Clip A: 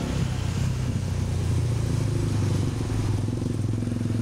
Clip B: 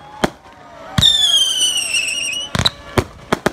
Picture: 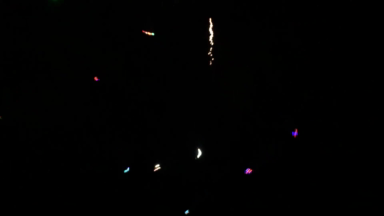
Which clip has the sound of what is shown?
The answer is B